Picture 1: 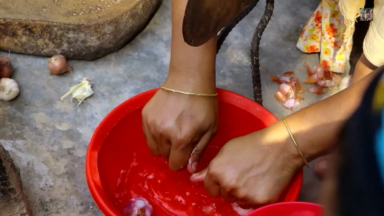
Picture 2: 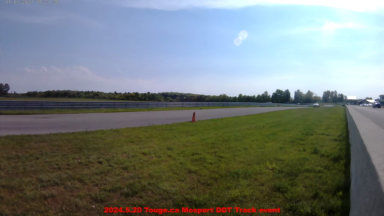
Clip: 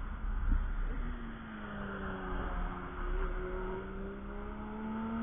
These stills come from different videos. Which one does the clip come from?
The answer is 2